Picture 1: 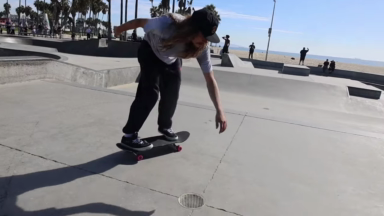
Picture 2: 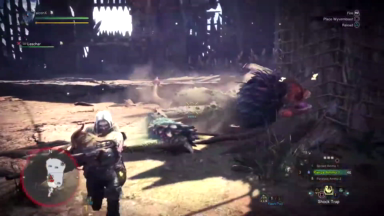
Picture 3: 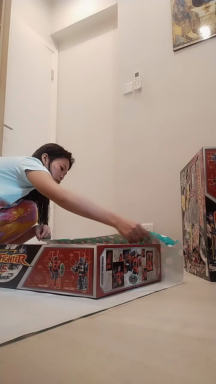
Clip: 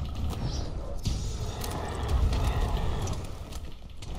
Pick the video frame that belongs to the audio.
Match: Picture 2